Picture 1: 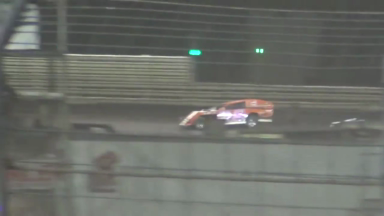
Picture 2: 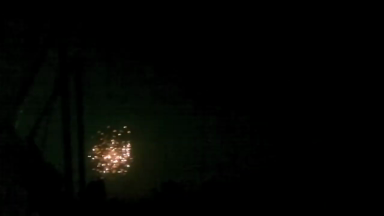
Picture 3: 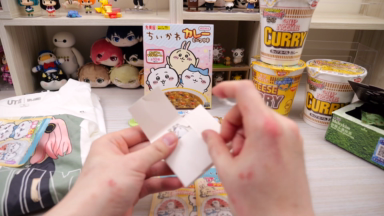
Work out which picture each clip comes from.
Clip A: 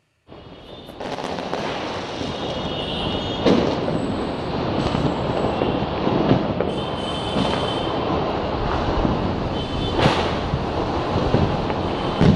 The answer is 2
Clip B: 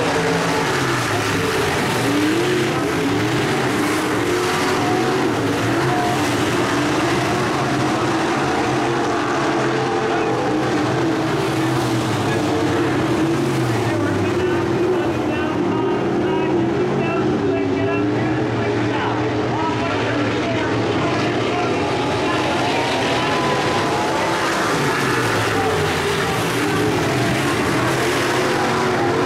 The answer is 1